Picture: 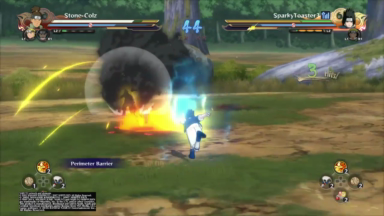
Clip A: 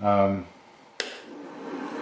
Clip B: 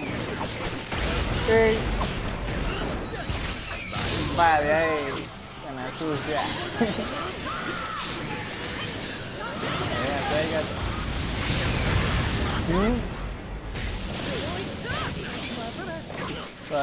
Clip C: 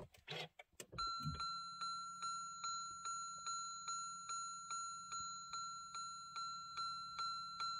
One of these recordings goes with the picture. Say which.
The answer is B